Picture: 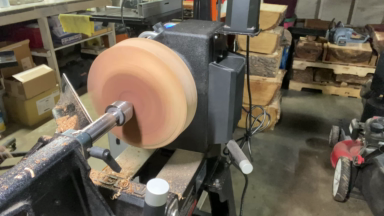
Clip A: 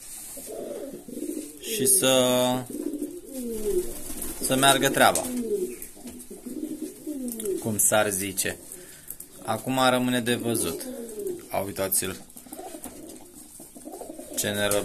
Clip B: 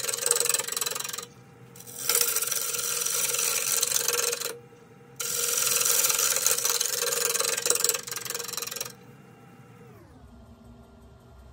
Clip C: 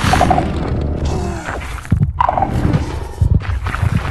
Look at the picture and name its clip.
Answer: B